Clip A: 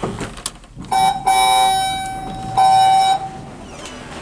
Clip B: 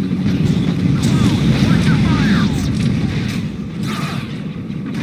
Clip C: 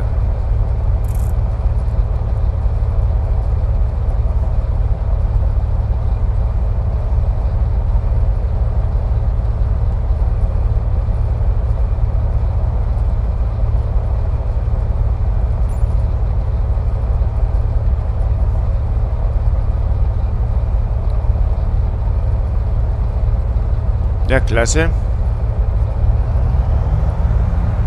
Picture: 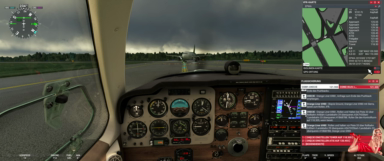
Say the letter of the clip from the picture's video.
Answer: C